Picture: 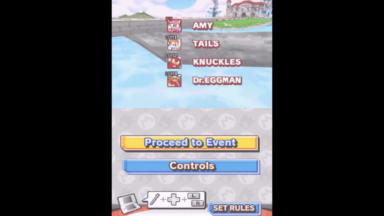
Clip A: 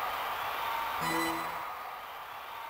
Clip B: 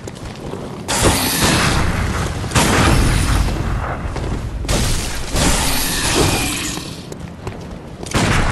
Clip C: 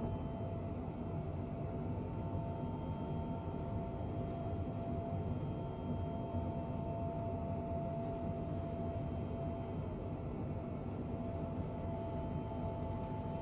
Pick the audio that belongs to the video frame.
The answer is A